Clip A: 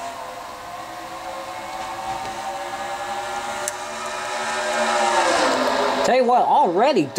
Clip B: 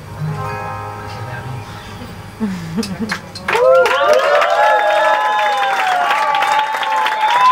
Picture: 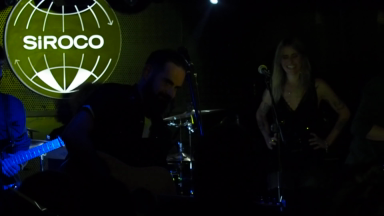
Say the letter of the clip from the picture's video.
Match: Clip B